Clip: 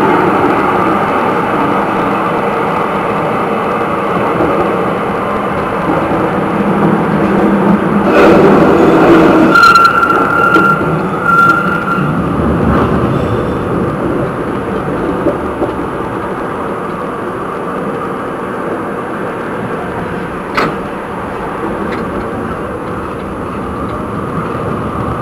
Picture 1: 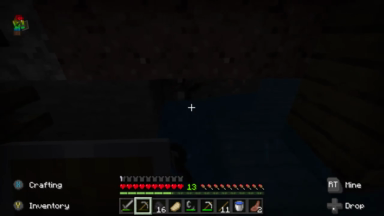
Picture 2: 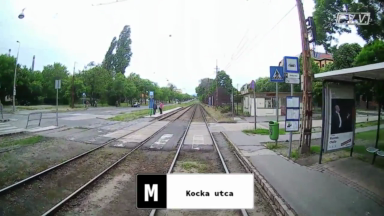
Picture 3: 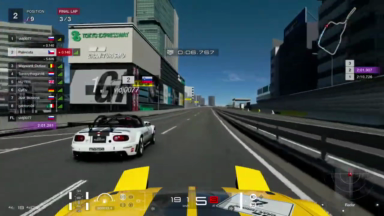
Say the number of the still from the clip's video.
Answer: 2